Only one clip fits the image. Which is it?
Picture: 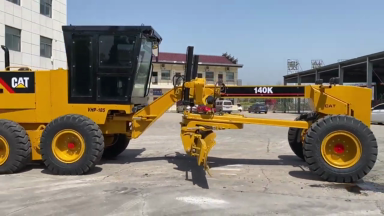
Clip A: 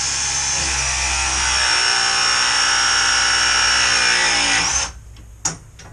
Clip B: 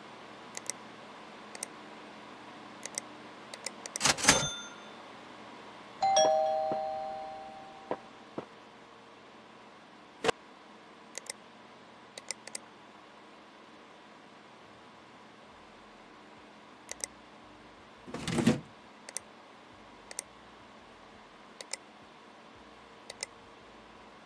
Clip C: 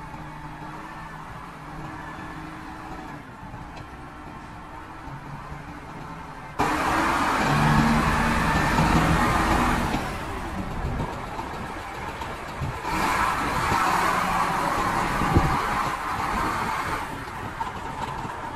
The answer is C